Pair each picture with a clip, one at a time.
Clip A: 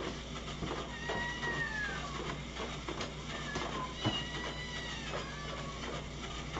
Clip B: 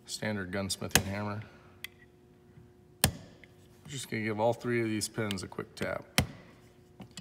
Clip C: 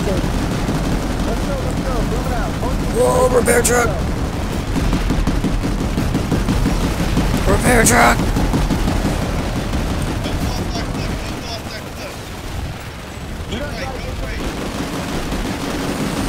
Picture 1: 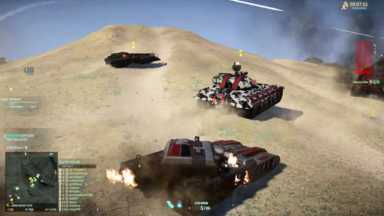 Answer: C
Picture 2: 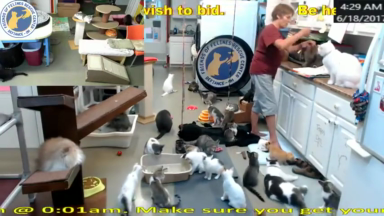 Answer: A